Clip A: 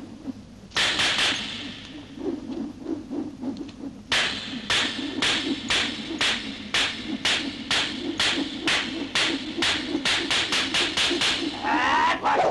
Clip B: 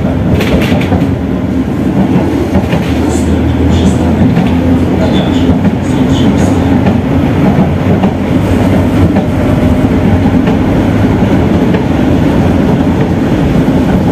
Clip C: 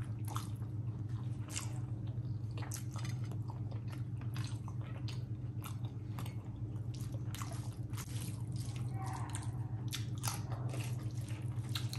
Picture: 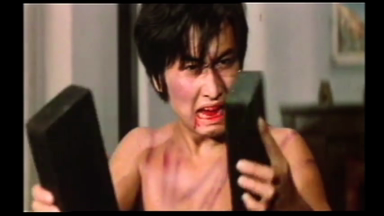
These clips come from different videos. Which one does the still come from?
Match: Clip A